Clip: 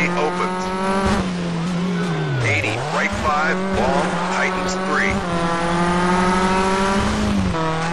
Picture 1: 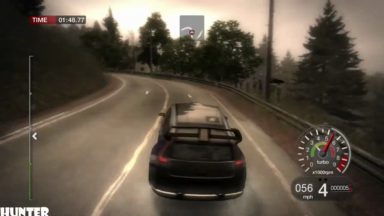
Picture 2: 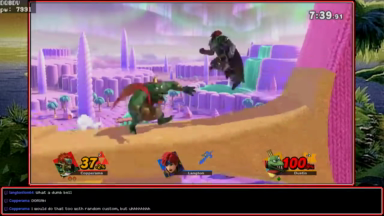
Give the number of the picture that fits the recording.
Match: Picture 1